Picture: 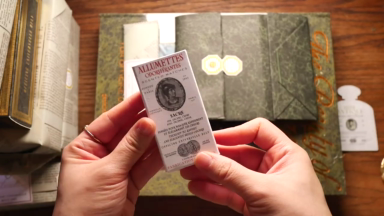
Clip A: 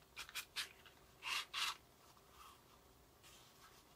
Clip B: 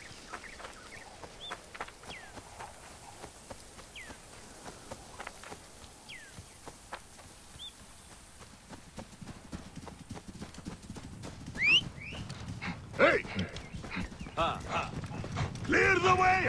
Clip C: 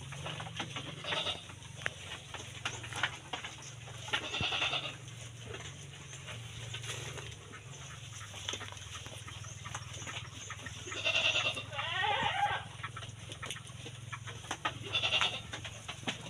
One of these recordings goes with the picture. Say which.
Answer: A